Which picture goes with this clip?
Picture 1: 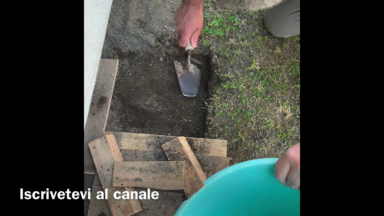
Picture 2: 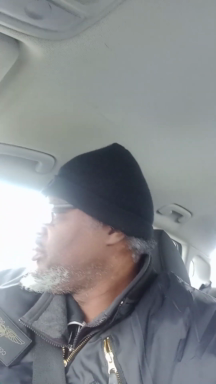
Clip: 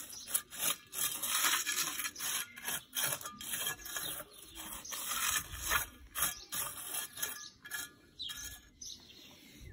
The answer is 1